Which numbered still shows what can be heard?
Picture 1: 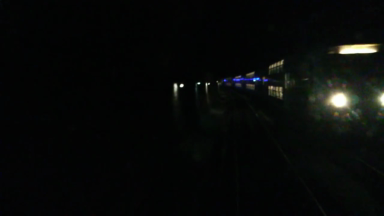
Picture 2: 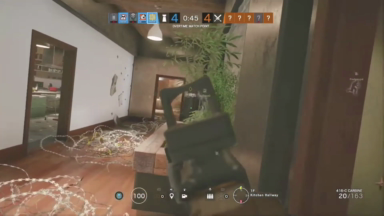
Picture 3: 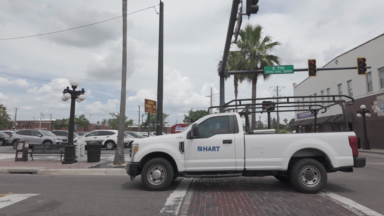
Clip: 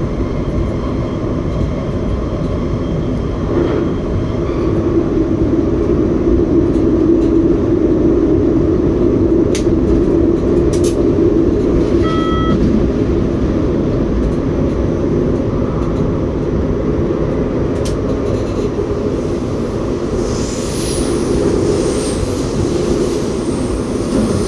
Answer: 1